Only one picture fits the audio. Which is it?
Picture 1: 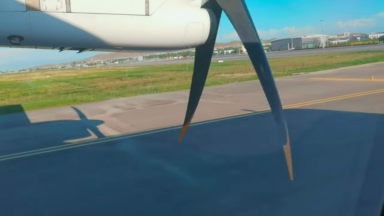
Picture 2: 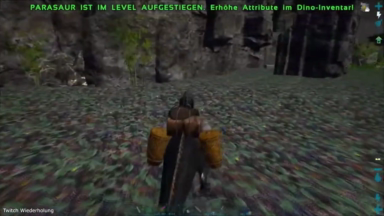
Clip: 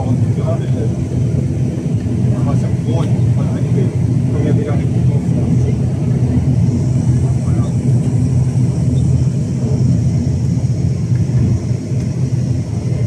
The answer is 1